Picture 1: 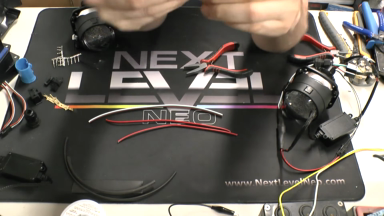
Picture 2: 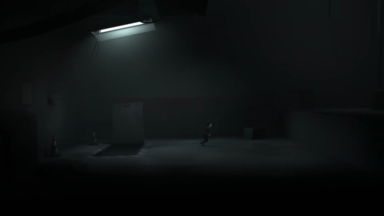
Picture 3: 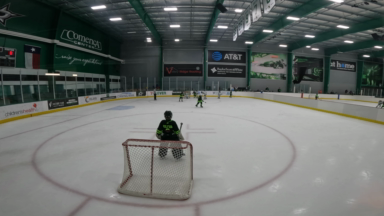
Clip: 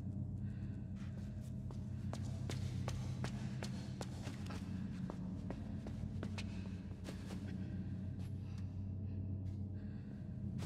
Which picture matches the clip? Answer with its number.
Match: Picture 2